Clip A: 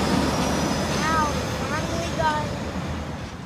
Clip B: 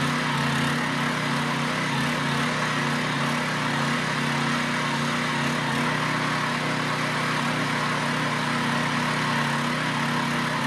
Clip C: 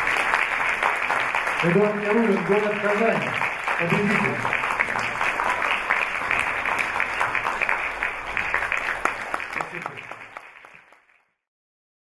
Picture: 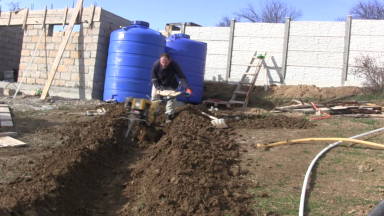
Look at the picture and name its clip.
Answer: B